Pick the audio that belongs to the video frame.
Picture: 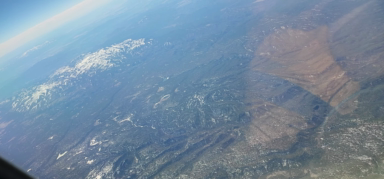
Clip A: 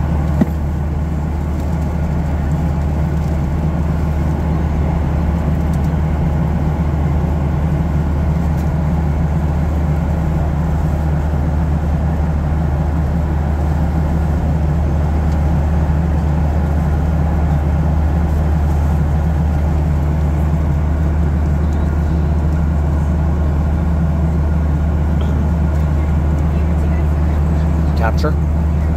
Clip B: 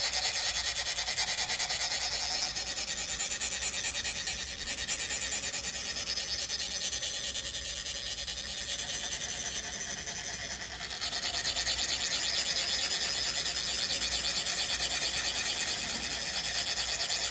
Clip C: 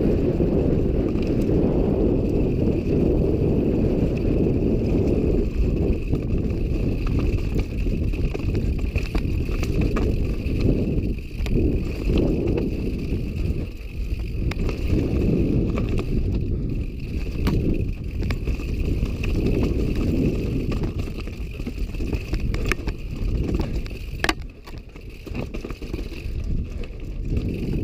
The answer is A